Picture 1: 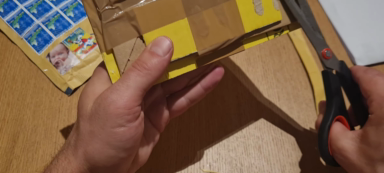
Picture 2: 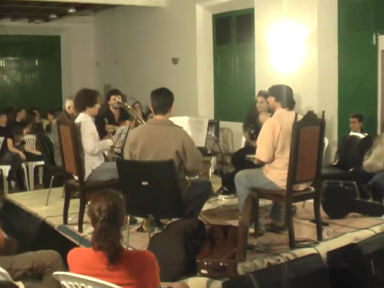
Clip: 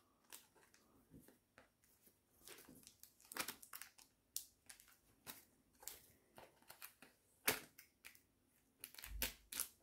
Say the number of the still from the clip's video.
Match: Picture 1